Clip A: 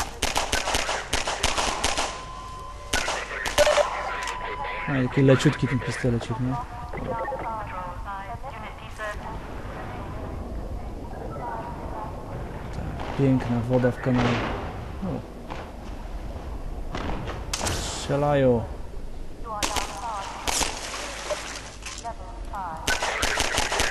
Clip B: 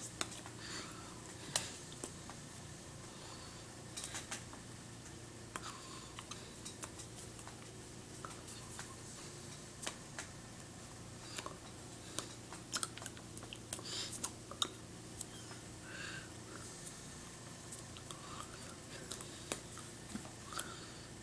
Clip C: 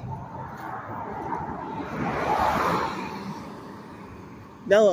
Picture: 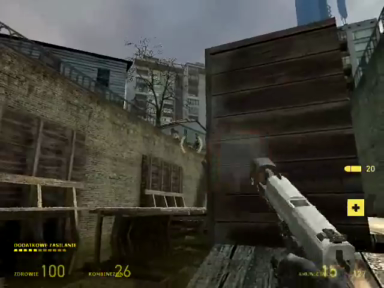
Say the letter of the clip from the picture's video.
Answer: A